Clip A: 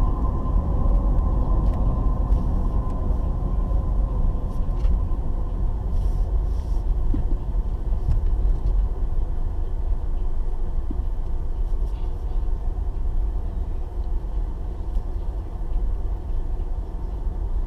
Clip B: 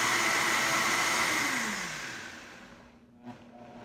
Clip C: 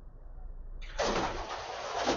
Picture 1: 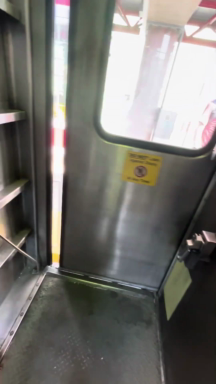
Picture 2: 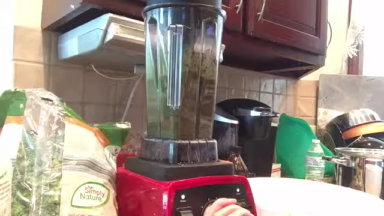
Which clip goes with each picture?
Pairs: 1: C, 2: B